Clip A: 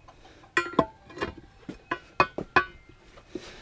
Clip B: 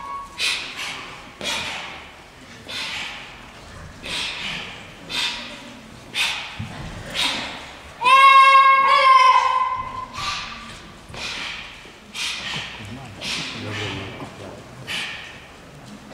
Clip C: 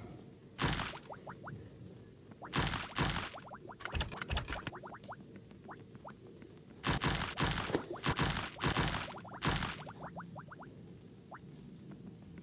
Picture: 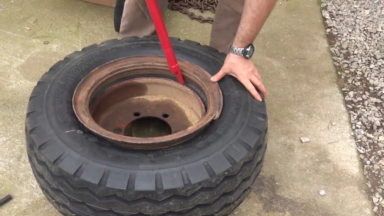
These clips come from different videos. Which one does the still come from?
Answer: A